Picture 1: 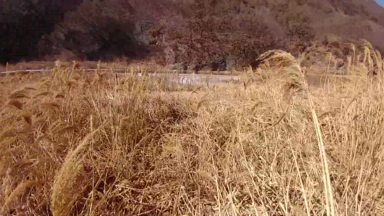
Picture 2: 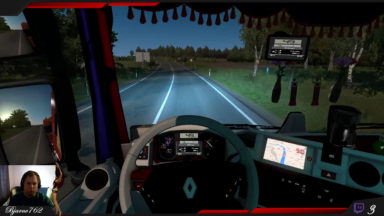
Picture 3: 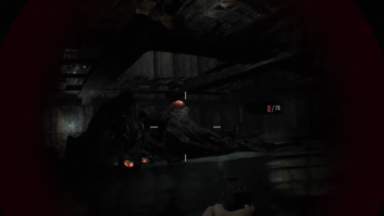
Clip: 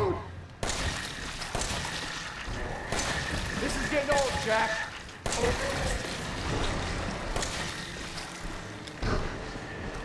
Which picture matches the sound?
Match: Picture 3